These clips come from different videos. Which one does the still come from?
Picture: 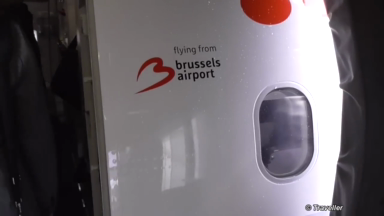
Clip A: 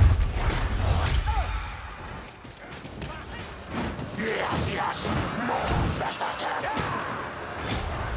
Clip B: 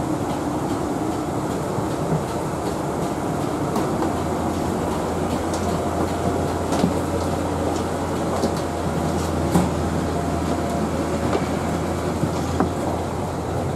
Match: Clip B